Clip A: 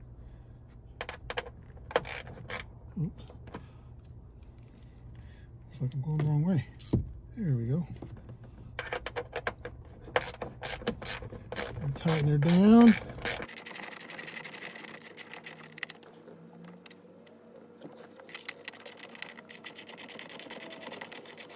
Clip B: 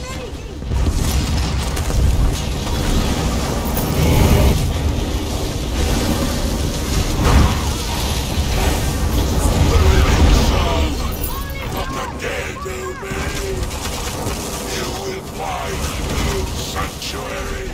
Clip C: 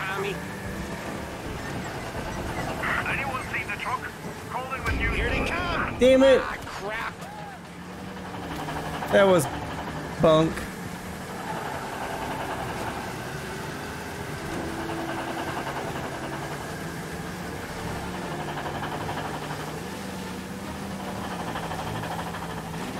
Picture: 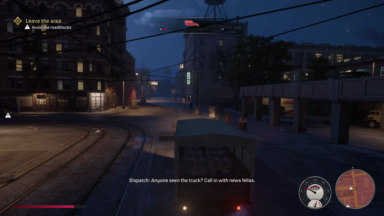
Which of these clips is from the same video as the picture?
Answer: C